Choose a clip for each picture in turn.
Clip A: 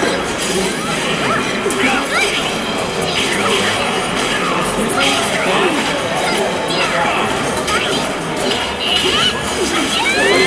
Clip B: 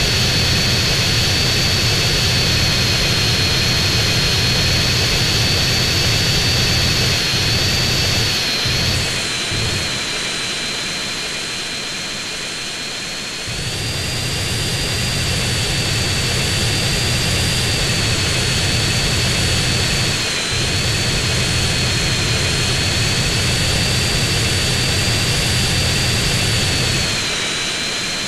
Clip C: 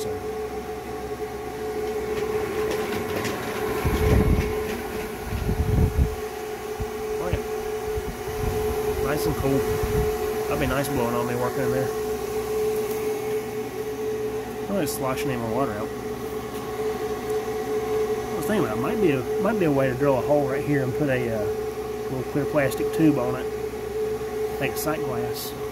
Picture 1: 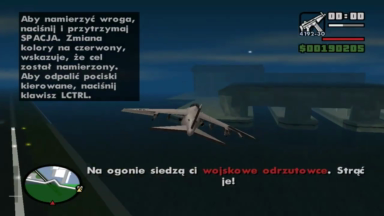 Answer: B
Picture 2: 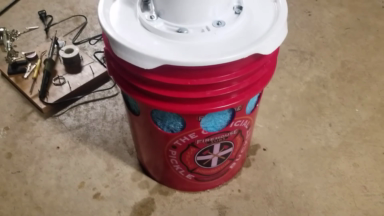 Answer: C